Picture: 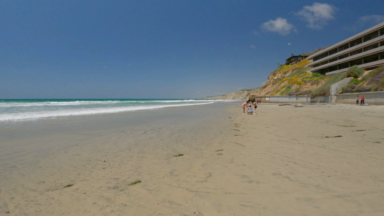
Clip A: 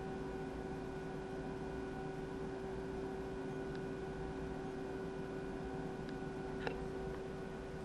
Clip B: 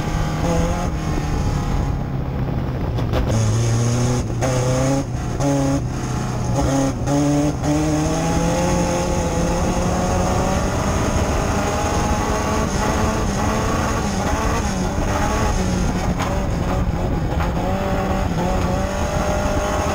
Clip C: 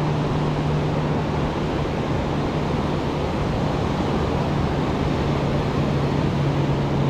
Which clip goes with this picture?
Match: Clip C